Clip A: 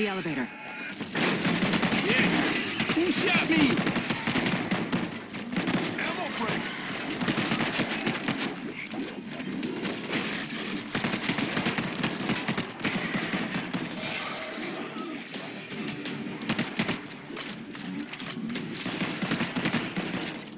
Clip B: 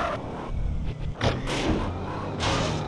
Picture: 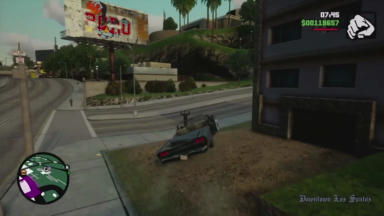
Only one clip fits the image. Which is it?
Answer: B